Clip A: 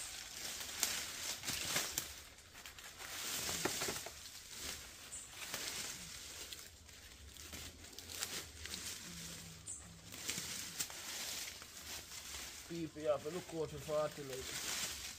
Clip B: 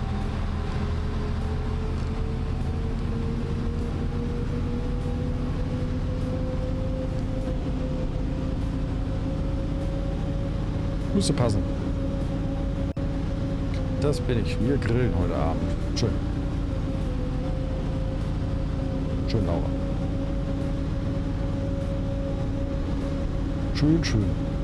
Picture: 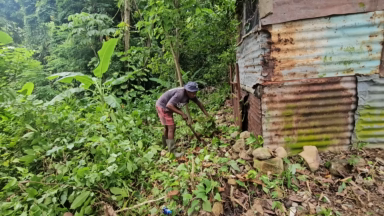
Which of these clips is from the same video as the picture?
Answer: A